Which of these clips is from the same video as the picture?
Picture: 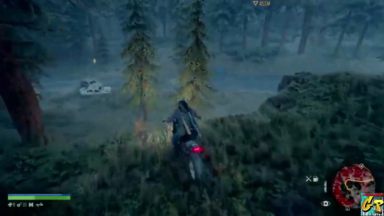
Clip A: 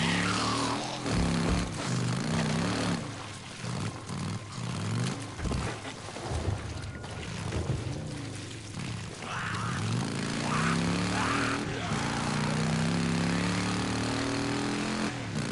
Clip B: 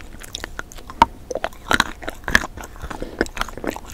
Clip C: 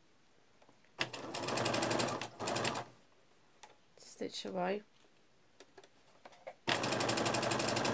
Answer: A